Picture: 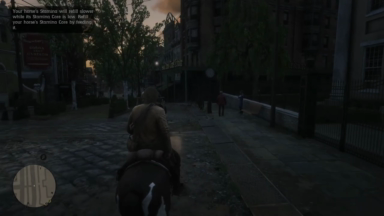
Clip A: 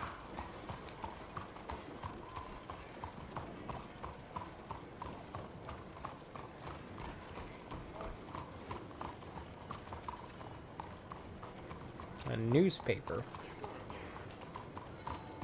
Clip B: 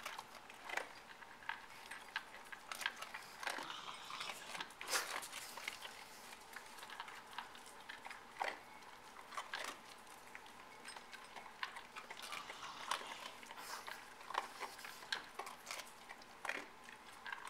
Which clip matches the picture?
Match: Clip A